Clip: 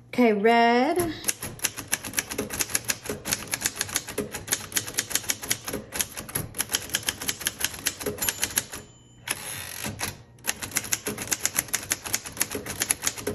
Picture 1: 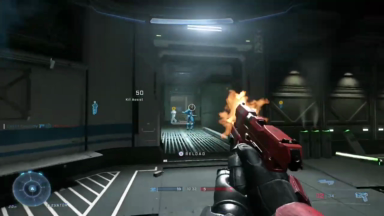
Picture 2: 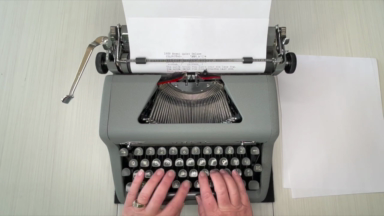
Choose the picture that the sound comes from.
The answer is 2